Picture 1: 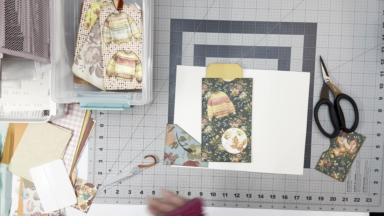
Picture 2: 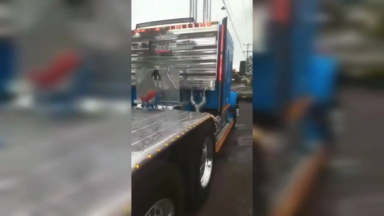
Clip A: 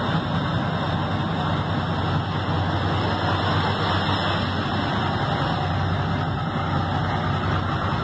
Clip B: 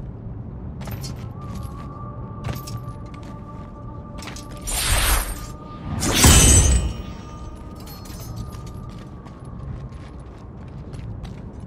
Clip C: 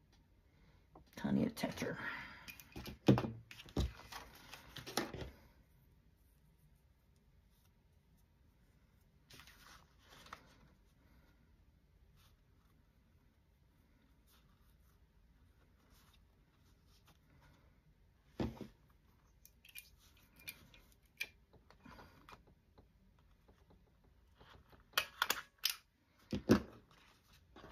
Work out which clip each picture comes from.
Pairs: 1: C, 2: A